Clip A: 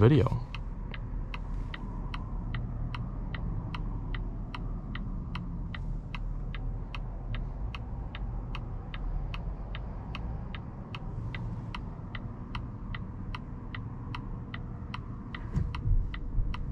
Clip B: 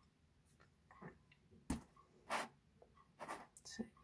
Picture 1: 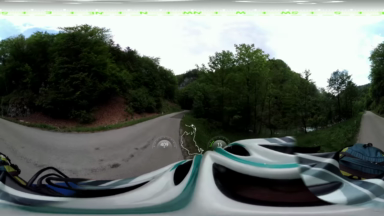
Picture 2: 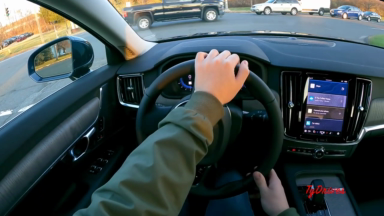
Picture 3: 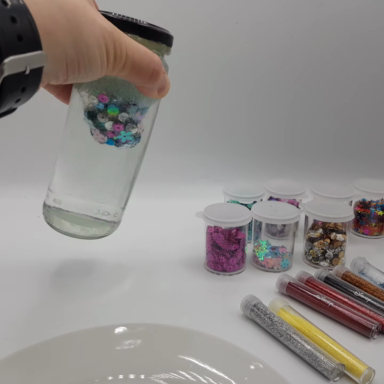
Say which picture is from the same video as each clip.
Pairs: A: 2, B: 3